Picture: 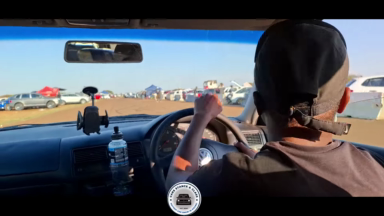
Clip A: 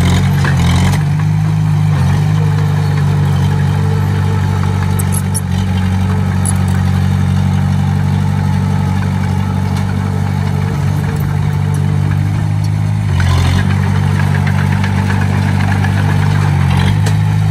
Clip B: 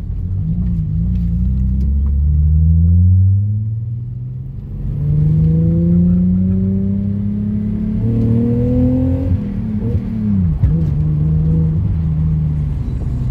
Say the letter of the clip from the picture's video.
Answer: B